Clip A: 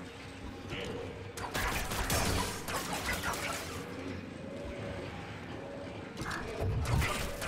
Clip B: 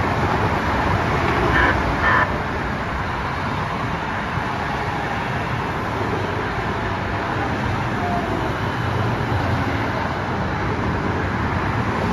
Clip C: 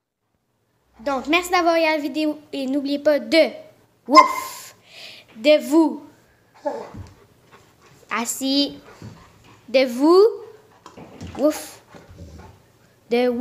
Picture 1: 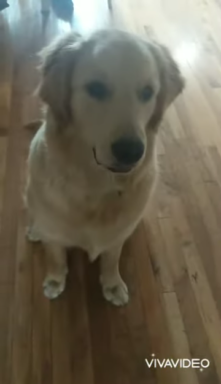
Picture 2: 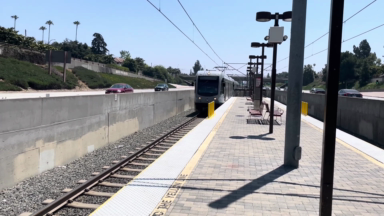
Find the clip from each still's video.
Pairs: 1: C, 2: B